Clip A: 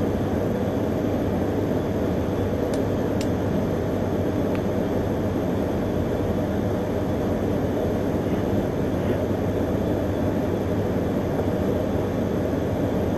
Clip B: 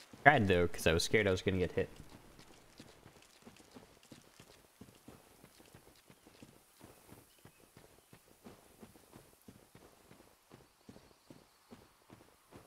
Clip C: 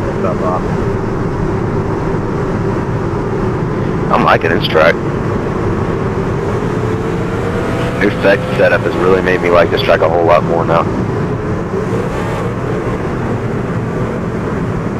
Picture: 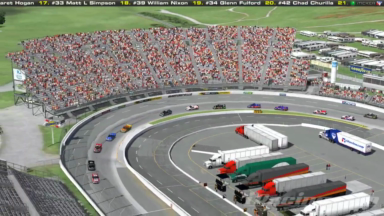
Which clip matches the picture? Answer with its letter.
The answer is C